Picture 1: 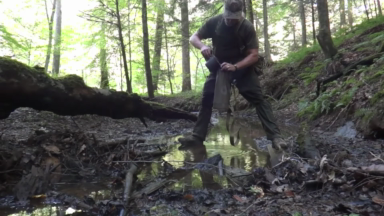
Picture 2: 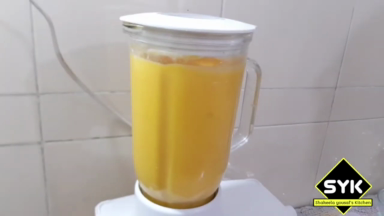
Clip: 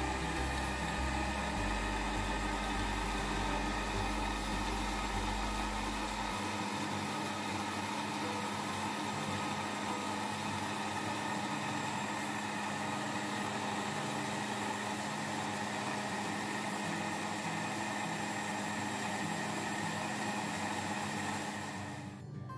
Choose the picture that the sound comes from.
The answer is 2